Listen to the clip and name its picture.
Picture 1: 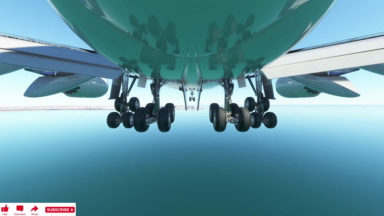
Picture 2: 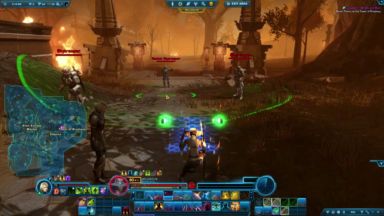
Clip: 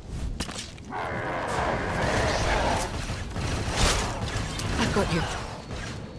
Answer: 2